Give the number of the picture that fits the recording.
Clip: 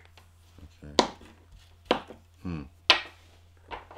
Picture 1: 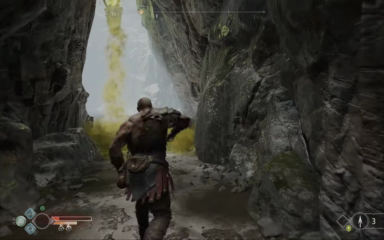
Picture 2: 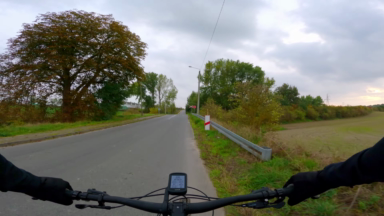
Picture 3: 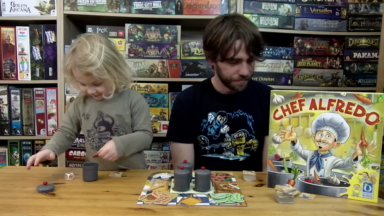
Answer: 3